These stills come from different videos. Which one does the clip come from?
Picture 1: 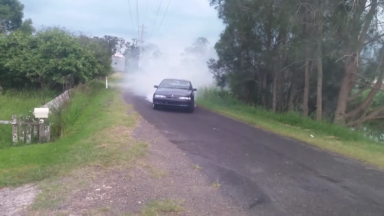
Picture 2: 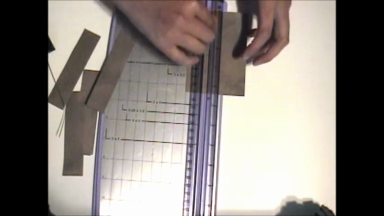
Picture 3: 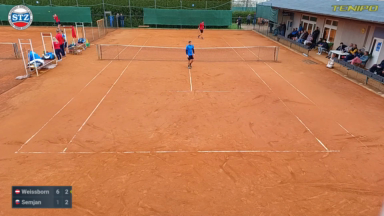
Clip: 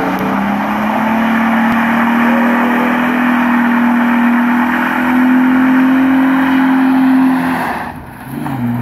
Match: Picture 1